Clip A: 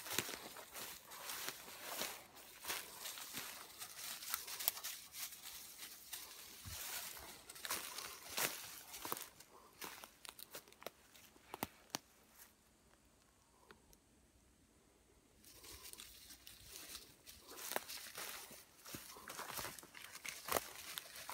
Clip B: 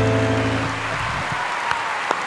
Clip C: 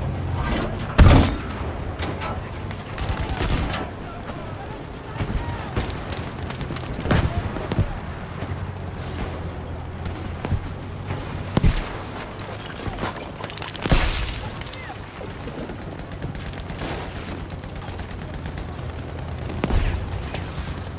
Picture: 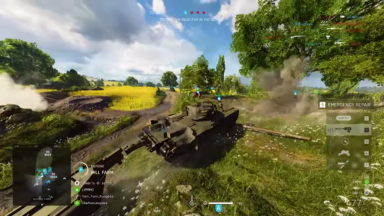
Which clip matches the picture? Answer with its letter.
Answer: C